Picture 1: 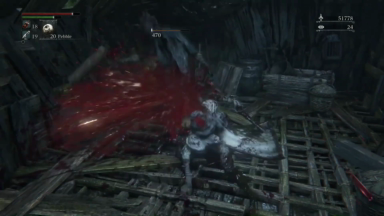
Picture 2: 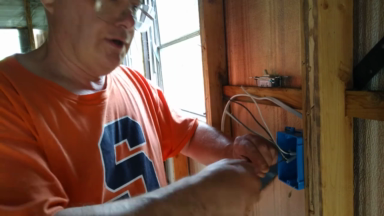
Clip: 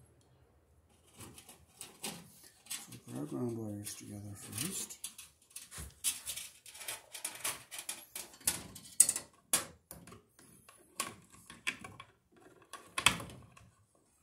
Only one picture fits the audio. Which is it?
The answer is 2